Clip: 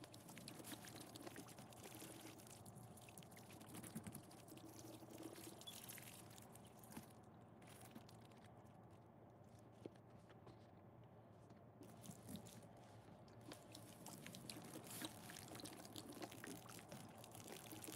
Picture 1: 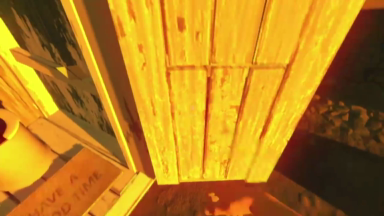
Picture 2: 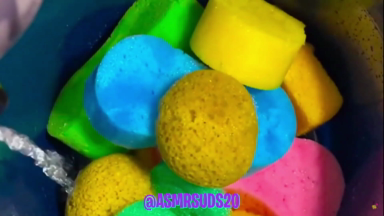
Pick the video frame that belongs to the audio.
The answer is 2